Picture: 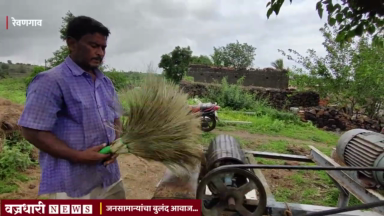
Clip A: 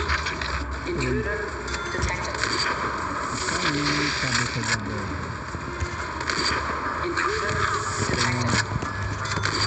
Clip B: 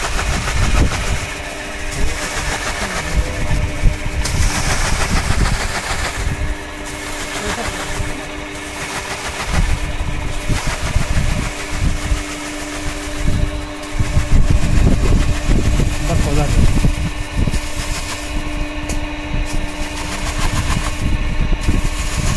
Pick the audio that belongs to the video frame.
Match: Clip B